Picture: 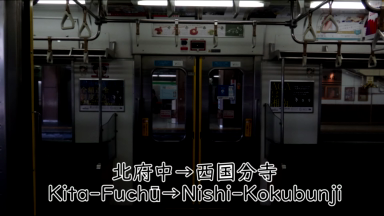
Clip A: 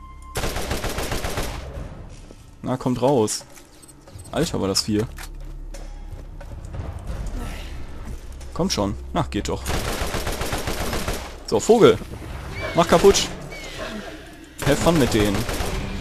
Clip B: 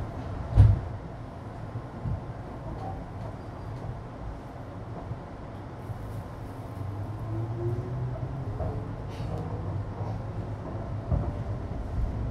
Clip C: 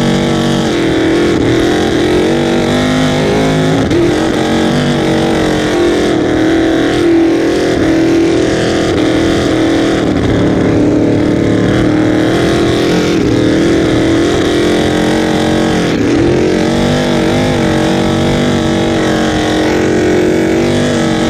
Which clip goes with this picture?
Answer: B